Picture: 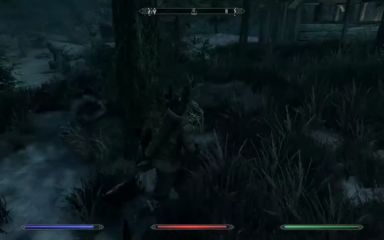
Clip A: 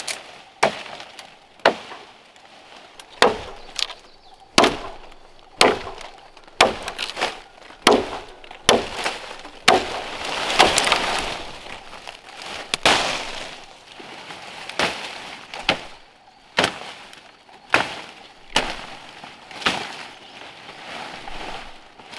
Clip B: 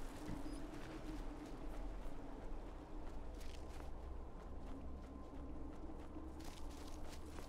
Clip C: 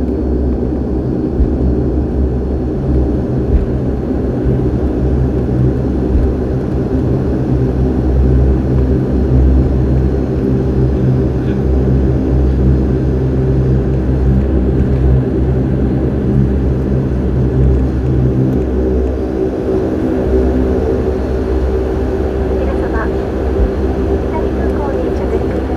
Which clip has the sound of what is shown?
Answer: B